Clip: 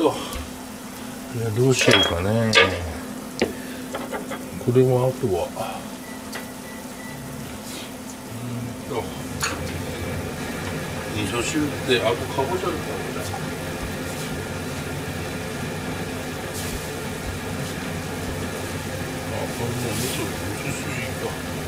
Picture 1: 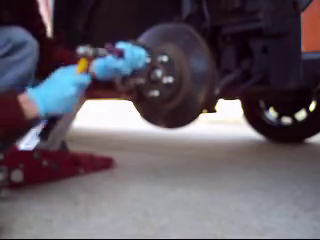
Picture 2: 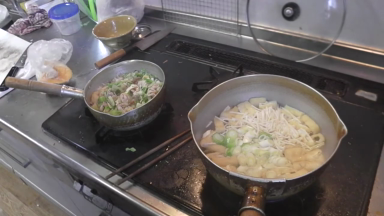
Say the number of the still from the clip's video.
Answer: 2